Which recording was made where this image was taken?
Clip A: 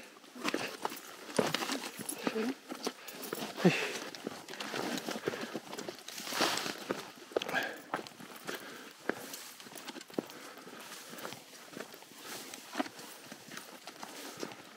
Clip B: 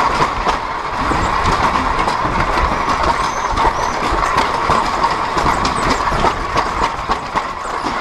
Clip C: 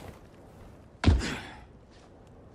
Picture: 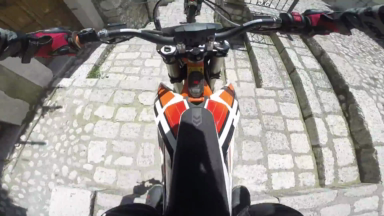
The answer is B